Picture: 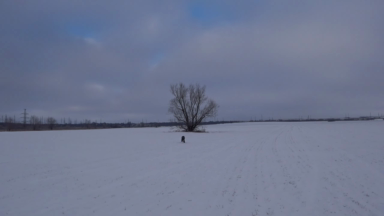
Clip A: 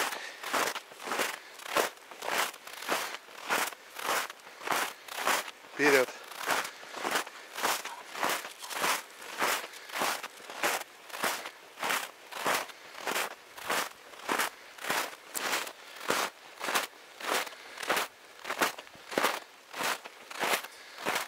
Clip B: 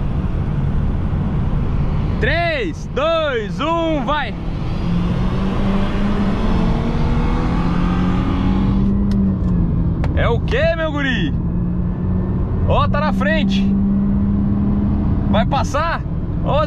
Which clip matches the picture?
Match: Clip A